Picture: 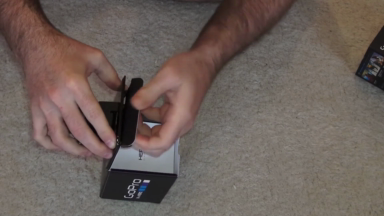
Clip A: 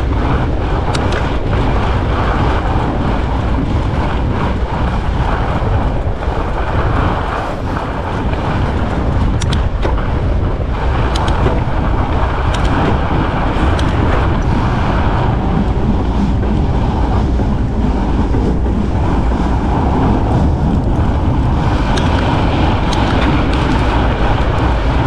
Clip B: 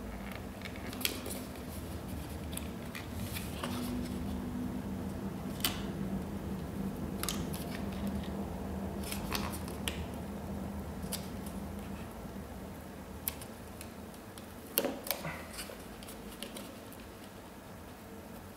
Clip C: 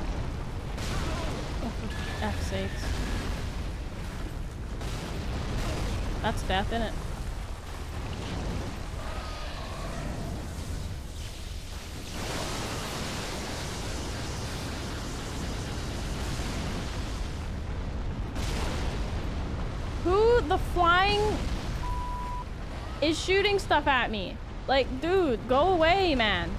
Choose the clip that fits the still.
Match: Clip B